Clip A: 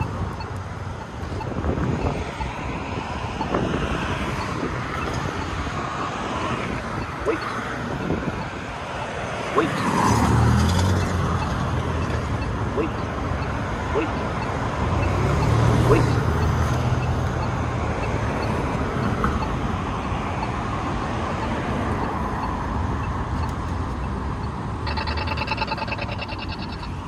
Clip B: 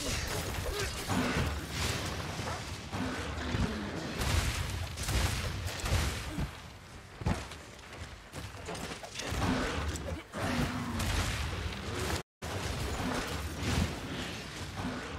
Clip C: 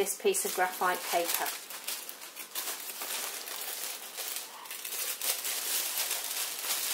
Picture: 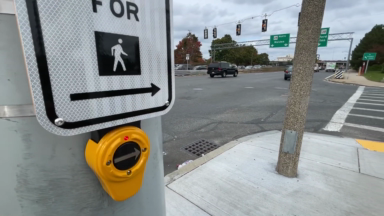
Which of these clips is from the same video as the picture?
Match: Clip A